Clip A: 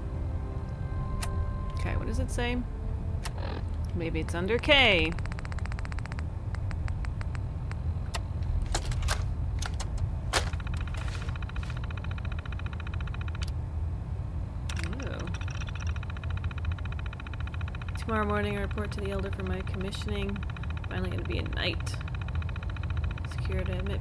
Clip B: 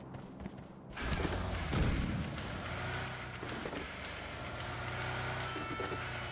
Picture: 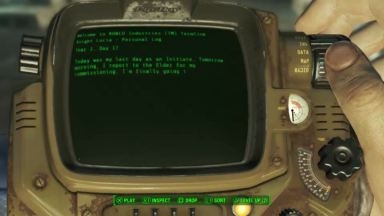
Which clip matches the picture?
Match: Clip A